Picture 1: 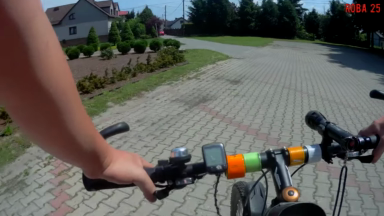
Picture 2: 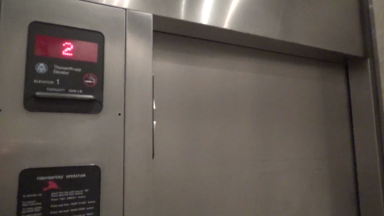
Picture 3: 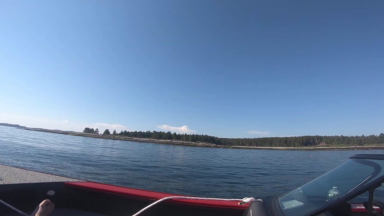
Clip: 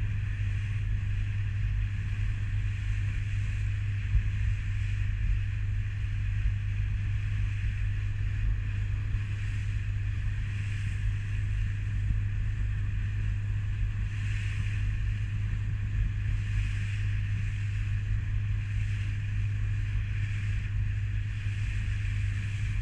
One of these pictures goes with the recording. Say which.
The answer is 3